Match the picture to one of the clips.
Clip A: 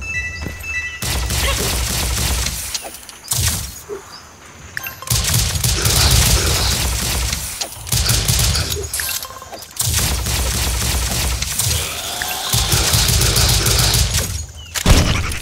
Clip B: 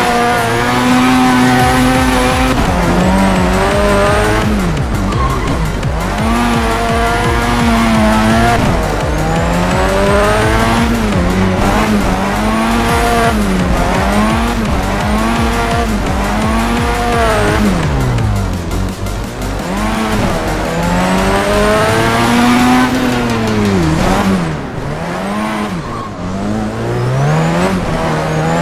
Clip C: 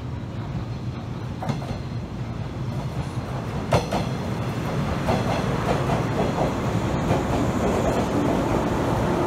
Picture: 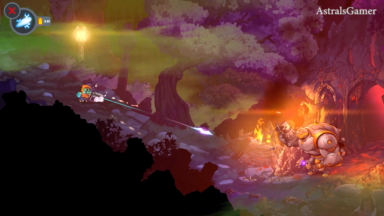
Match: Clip A